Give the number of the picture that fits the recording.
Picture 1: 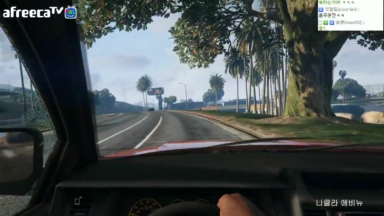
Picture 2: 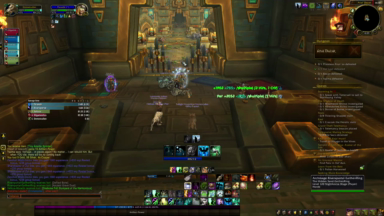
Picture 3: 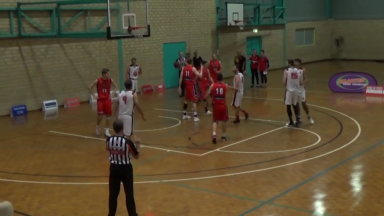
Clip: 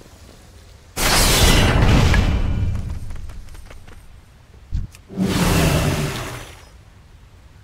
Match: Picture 2